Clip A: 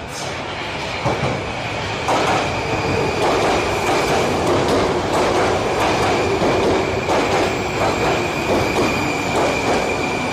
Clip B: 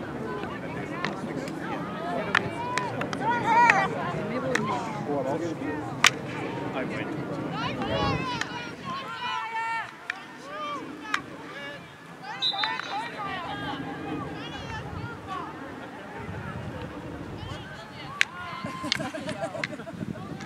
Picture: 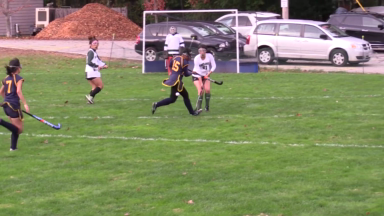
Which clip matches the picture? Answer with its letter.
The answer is B